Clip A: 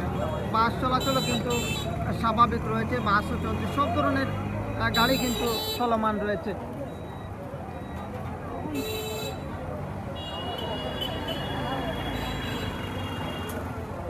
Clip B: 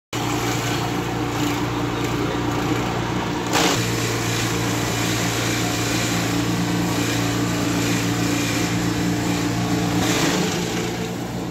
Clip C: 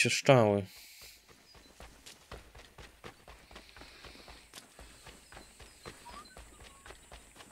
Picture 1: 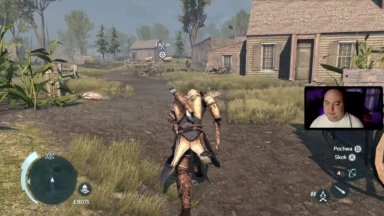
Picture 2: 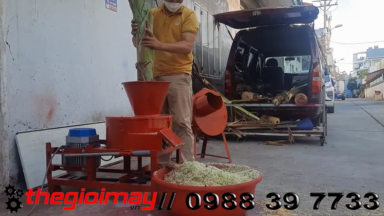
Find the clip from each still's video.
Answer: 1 C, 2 B